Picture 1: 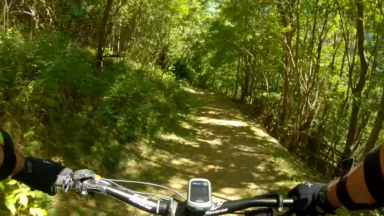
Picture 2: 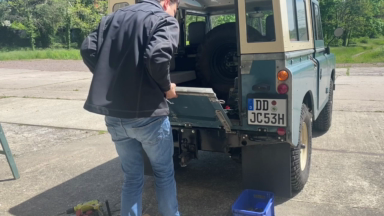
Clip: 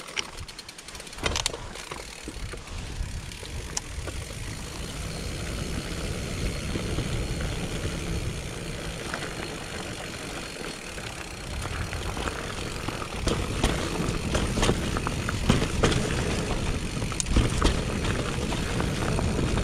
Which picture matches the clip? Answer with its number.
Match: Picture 1